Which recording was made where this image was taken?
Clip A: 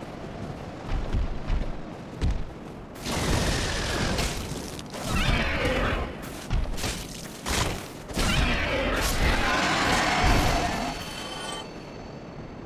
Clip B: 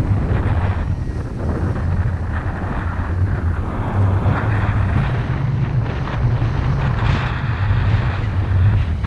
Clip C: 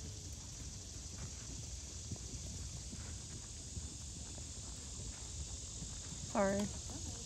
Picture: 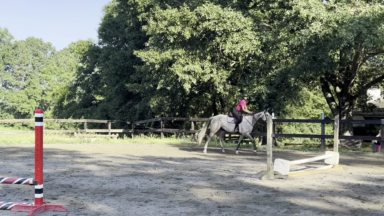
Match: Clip C